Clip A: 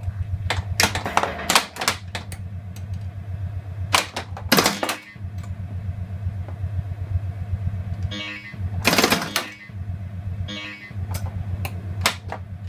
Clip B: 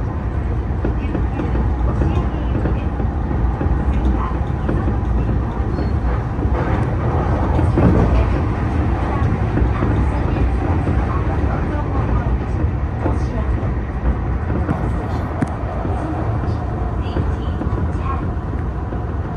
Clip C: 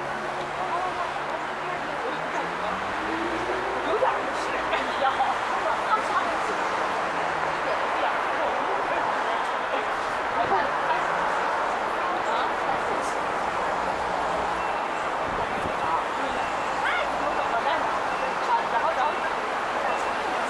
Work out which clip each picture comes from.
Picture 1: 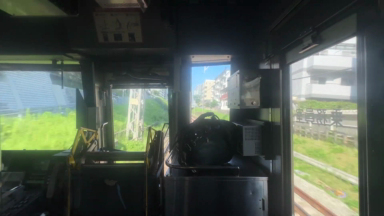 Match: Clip B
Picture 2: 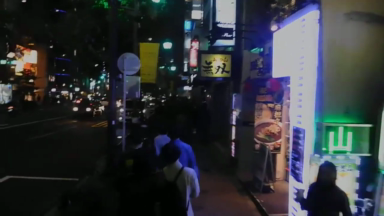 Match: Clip C